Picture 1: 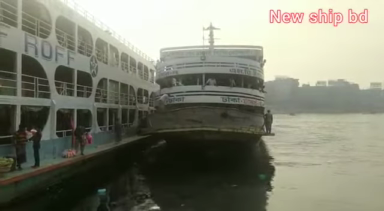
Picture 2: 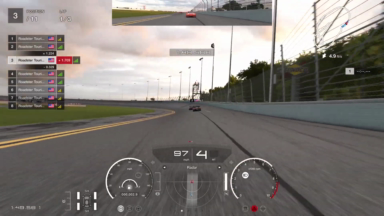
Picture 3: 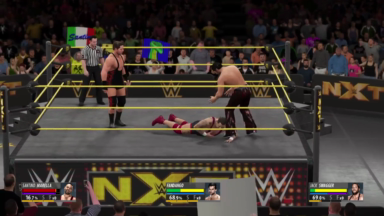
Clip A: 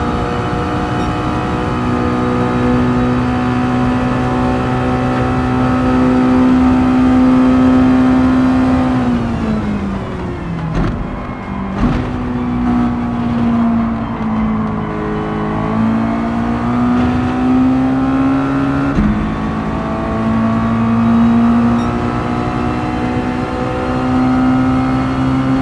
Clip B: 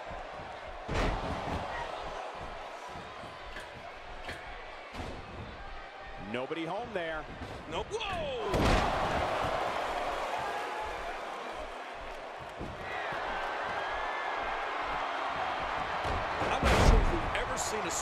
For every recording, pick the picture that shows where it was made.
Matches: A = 2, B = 3